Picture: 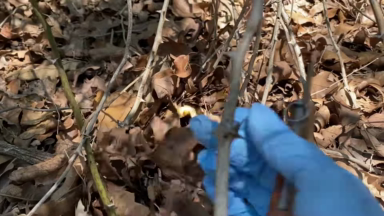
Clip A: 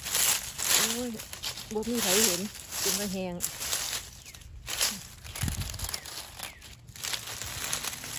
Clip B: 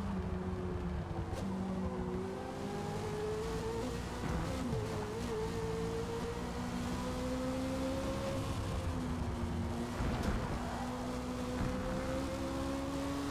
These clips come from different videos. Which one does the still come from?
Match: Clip A